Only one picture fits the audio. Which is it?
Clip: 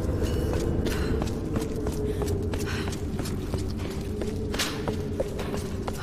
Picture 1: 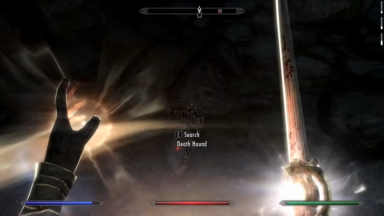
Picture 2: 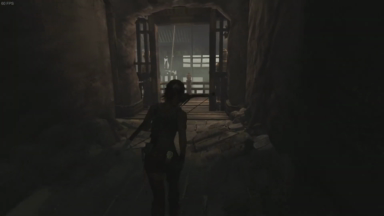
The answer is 2